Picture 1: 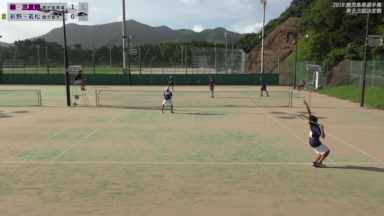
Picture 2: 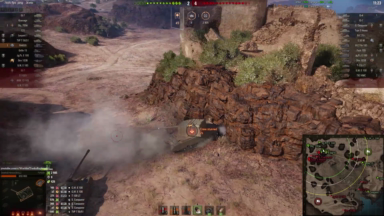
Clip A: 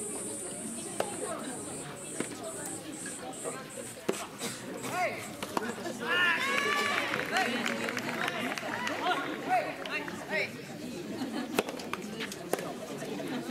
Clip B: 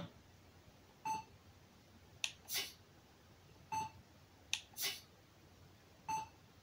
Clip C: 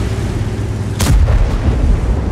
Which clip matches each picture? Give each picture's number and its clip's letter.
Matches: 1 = A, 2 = C